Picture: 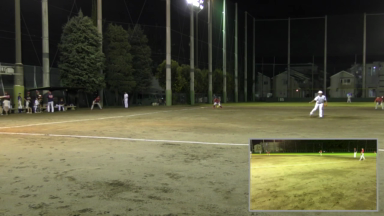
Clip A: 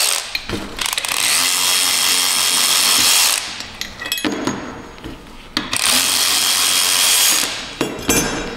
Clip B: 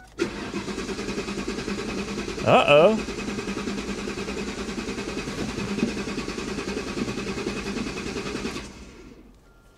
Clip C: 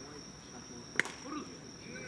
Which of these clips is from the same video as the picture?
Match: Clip C